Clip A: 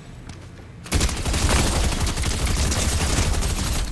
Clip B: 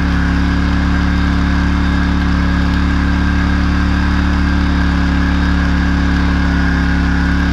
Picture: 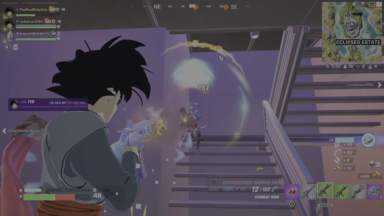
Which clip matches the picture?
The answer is A